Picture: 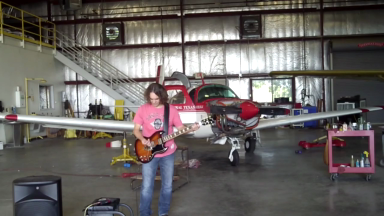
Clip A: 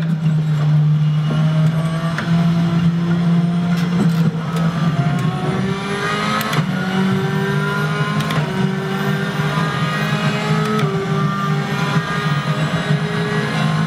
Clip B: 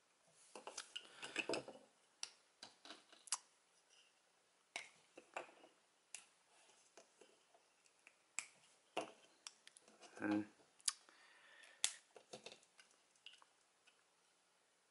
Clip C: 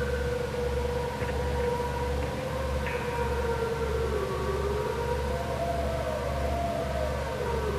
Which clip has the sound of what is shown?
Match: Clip C